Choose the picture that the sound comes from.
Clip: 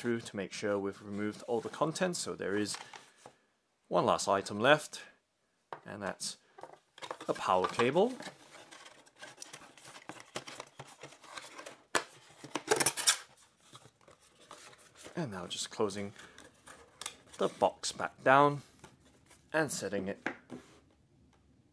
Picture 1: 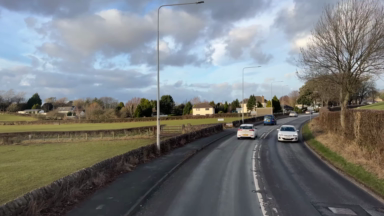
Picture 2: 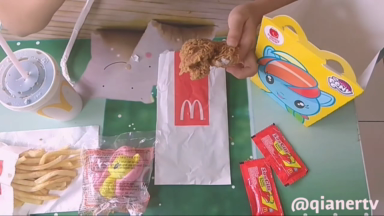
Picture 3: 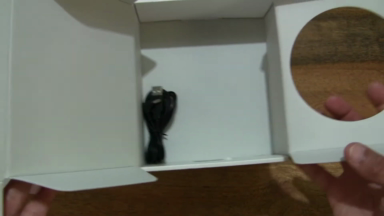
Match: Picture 3